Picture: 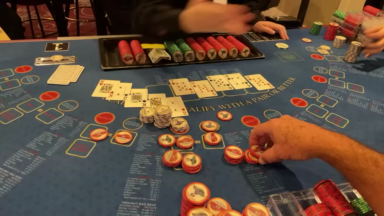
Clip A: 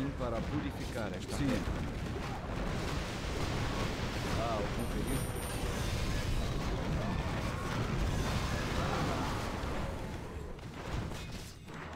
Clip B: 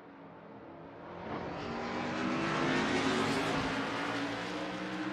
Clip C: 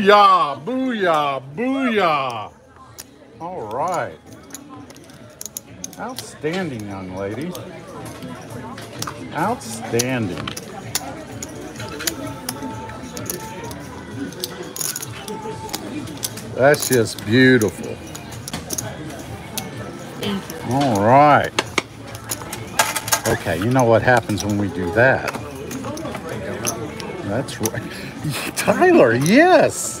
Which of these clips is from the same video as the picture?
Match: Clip C